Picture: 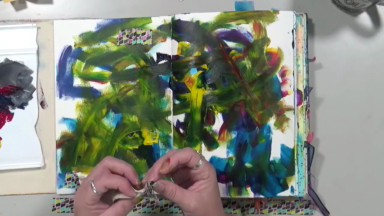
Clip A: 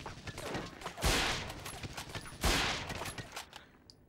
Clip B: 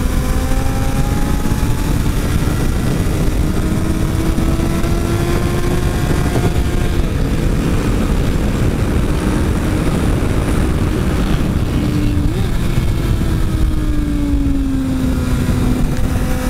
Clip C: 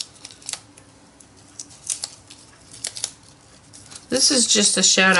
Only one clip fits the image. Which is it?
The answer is C